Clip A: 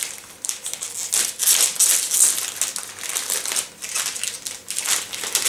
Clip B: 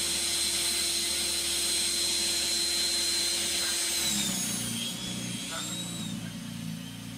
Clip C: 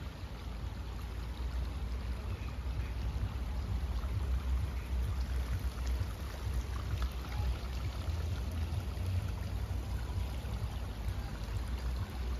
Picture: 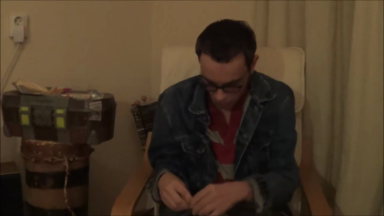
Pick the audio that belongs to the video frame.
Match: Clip A